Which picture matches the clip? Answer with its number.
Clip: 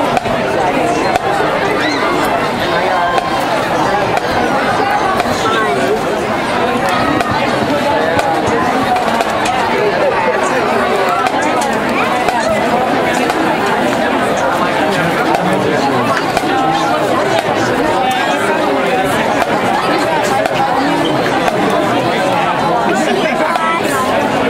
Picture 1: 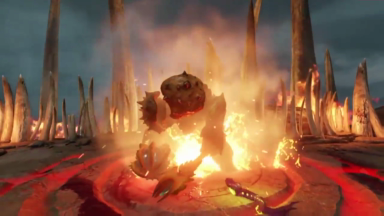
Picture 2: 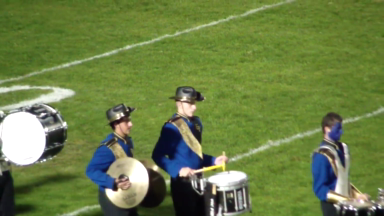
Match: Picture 2